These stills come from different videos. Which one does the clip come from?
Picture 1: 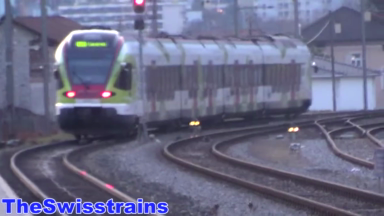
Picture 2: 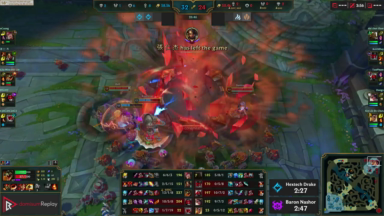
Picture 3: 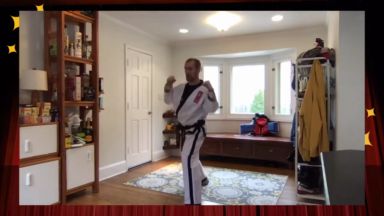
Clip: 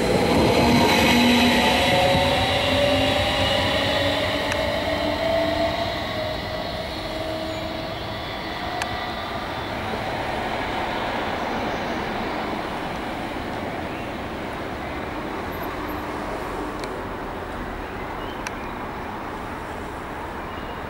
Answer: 1